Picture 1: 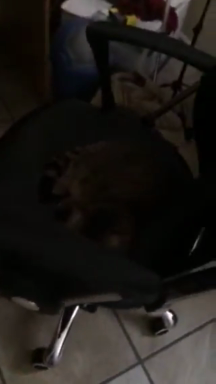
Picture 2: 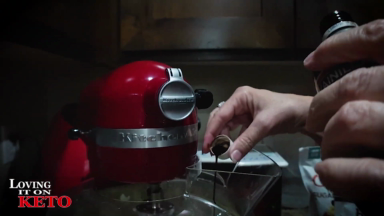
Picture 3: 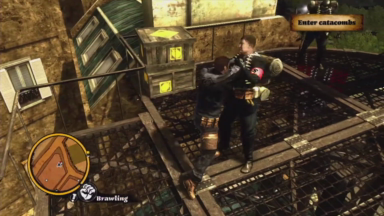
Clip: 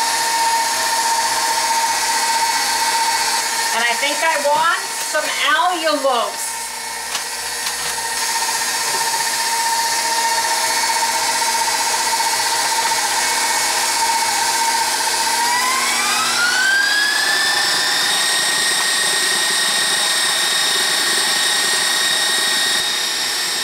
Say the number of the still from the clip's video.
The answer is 2